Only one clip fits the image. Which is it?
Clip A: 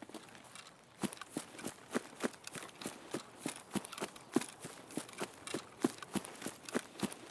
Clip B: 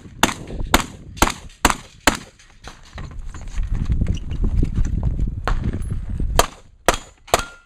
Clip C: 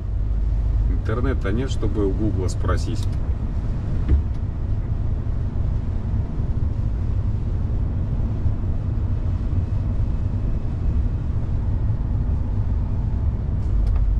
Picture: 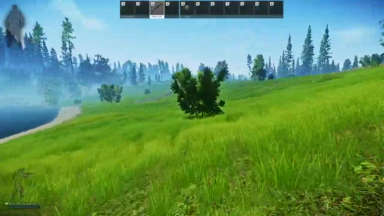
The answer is A